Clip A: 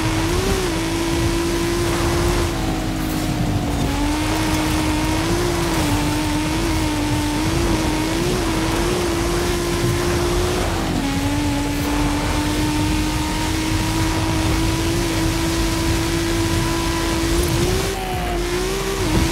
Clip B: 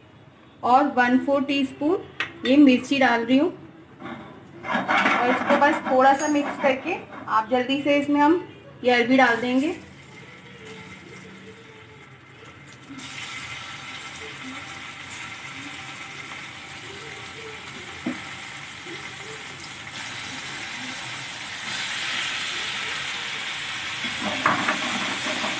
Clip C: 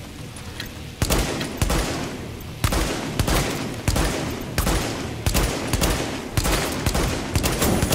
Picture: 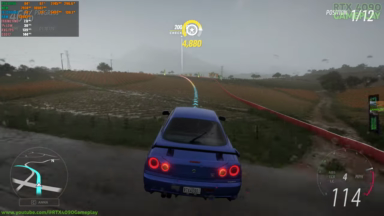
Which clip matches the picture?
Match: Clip A